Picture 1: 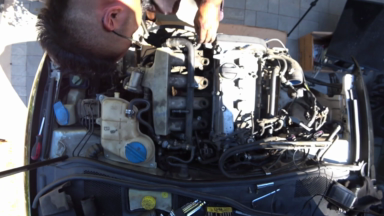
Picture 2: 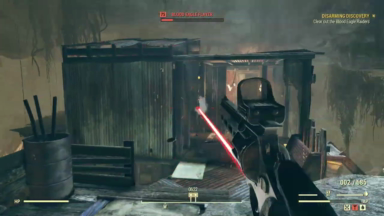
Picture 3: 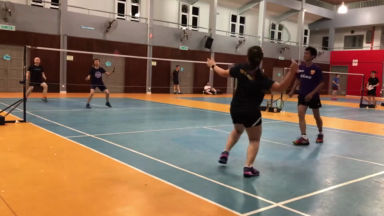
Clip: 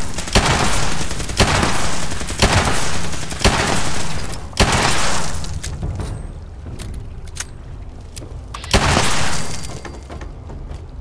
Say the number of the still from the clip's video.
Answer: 2